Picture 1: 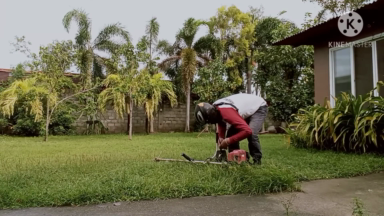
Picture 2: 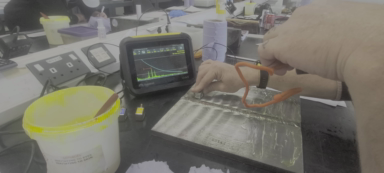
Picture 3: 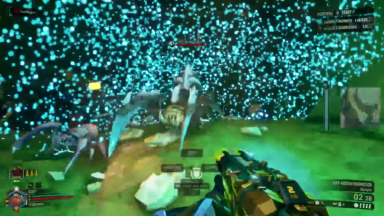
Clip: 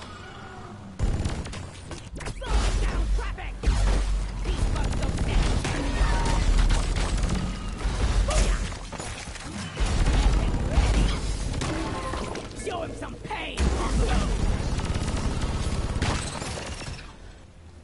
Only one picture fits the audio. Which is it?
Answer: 3